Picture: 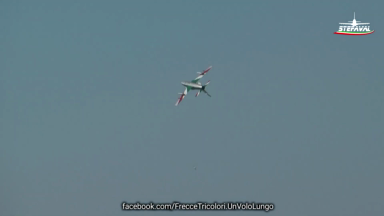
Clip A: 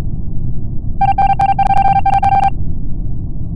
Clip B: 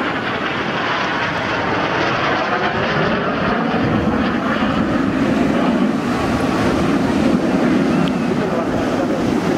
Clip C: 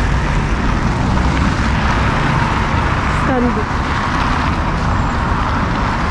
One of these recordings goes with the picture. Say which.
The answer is B